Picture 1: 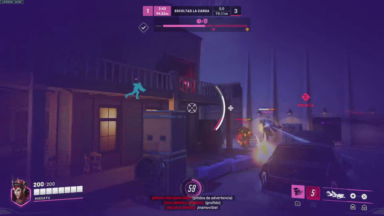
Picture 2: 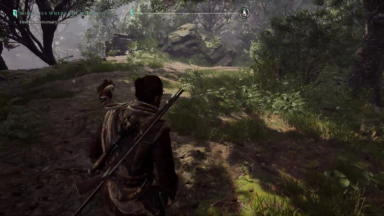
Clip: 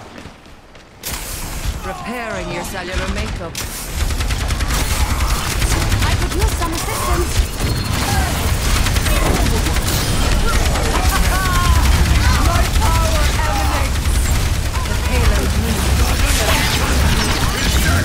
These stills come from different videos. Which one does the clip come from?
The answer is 1